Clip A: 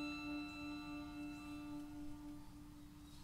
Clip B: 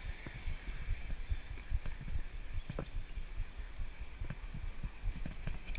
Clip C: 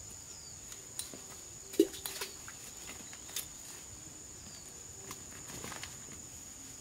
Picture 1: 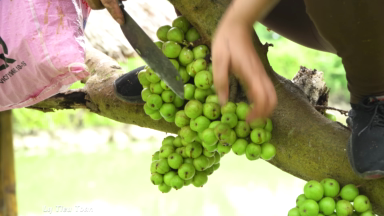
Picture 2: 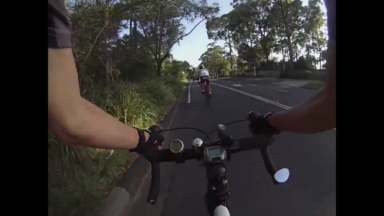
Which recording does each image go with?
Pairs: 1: C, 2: B